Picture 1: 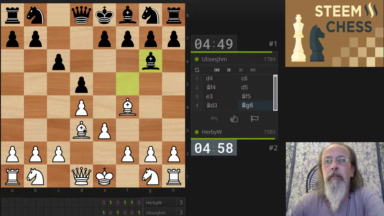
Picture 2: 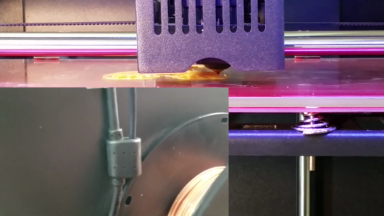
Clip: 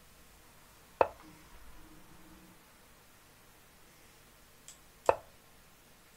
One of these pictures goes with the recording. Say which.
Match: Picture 1